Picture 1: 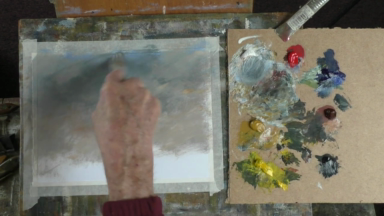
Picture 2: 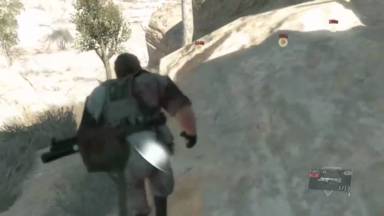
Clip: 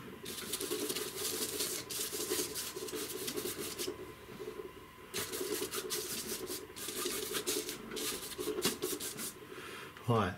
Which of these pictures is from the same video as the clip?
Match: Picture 1